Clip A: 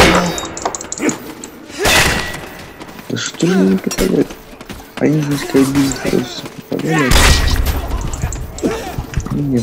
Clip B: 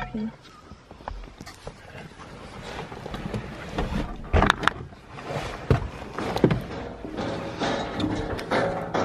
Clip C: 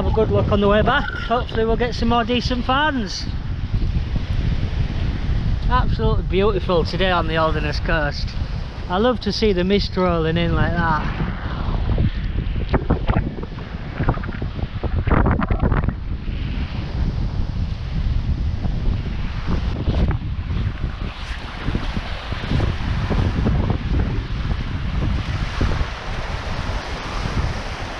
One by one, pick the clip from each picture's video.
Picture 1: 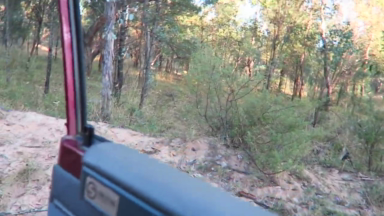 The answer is B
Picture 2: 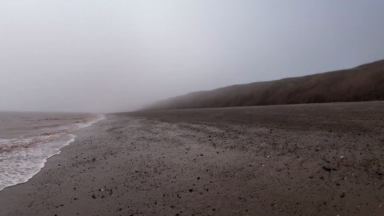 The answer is C